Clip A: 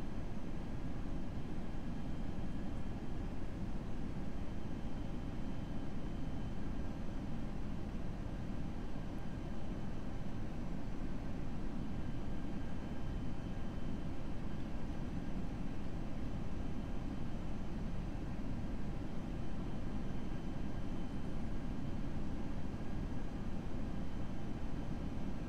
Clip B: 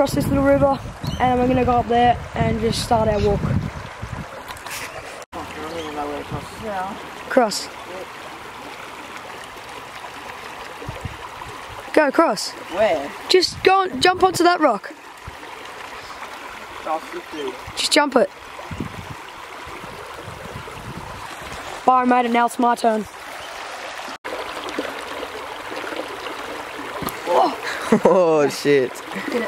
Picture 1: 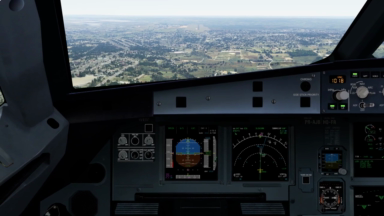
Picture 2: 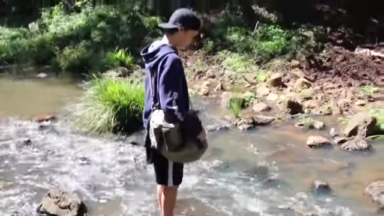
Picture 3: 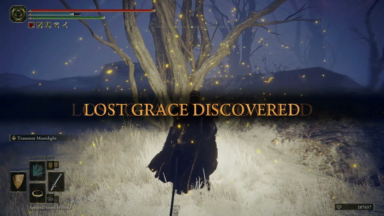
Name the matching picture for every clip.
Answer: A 1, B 2